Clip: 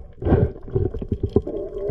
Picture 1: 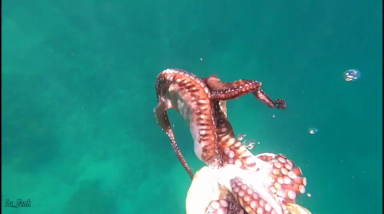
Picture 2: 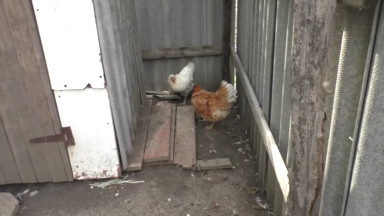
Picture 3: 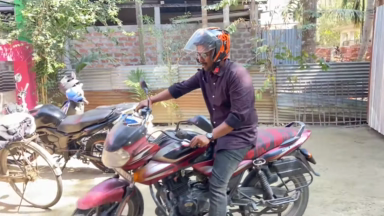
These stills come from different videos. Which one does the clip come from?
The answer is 1